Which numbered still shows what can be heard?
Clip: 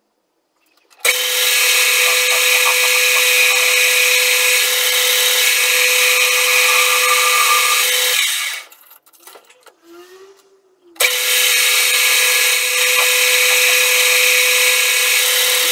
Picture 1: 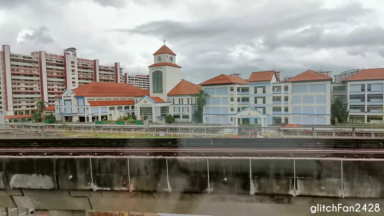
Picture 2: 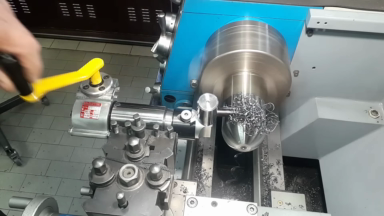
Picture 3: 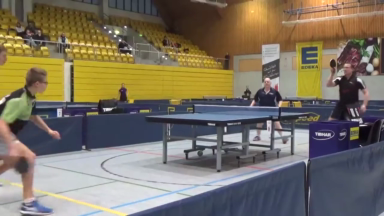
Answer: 2